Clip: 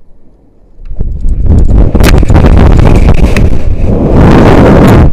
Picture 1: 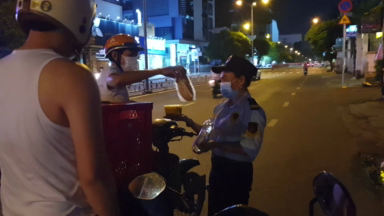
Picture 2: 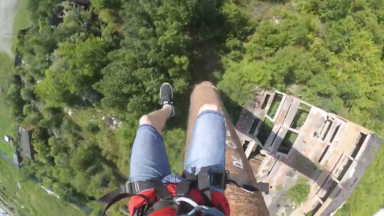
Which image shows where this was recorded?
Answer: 2